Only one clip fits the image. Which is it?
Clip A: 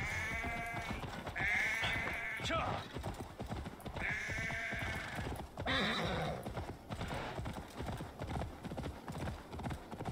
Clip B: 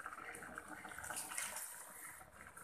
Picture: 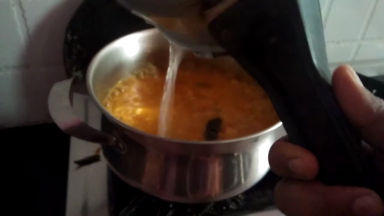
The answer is B